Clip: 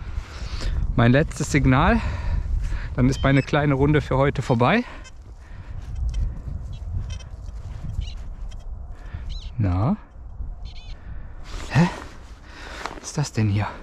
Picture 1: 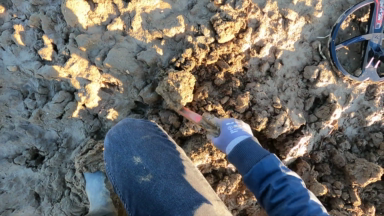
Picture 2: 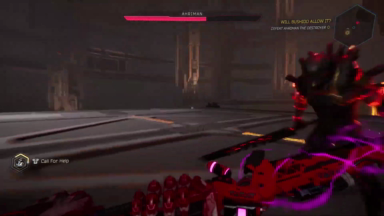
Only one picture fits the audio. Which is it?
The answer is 1